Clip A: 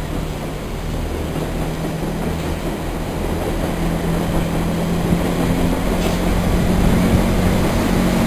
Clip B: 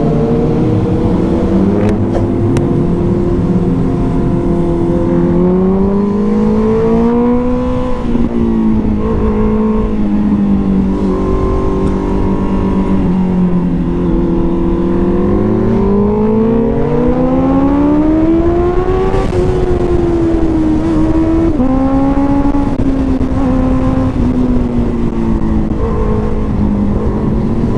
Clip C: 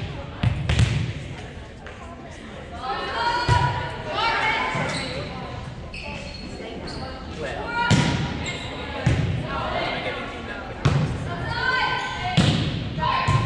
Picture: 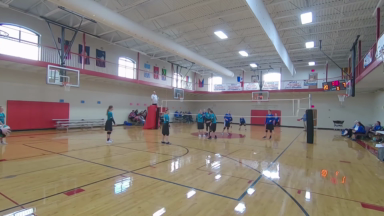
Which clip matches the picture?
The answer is C